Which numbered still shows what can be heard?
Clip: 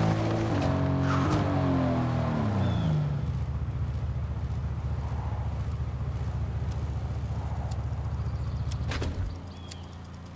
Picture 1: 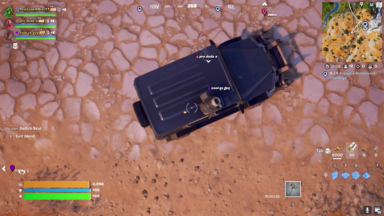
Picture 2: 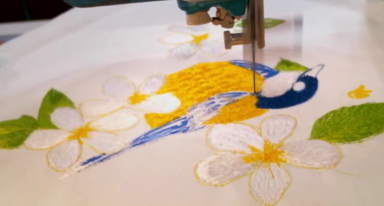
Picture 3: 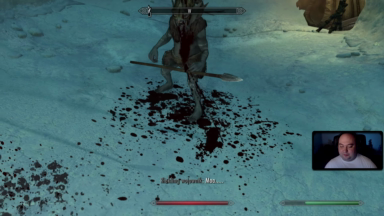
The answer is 1